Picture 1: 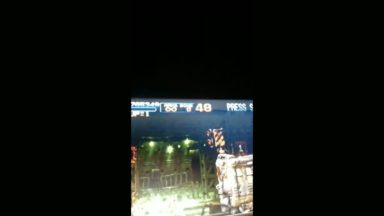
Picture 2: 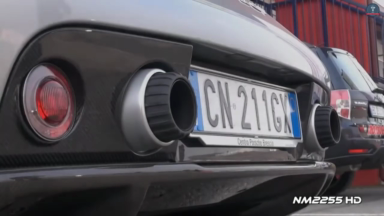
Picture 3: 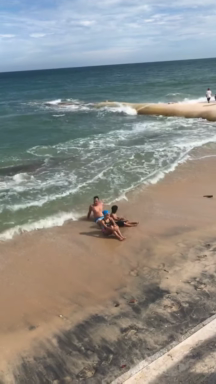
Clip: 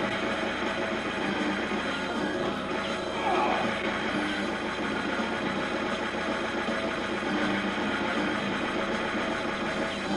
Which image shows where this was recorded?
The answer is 1